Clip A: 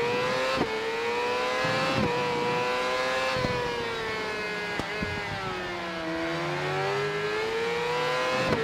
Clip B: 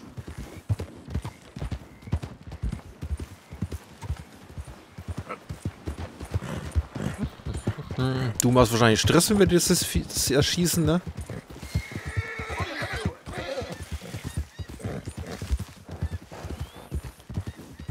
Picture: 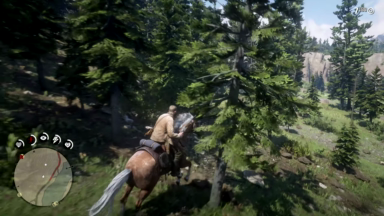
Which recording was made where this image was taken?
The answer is B